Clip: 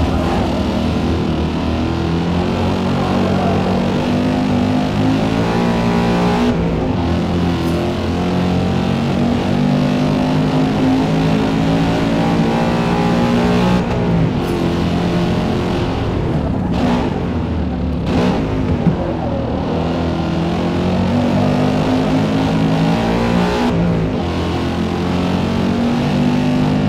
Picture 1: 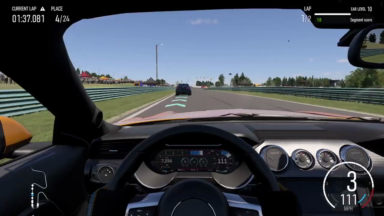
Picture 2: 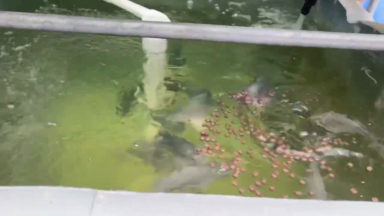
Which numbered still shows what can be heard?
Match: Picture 1